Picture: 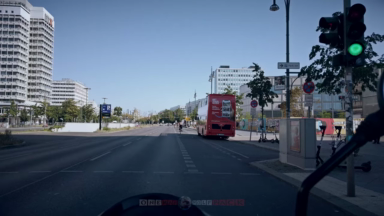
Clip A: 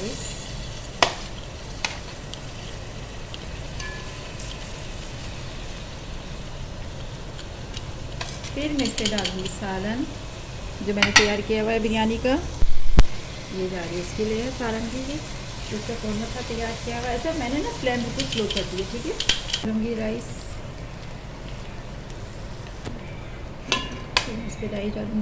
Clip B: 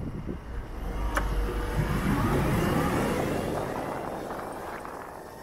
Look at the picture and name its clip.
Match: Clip B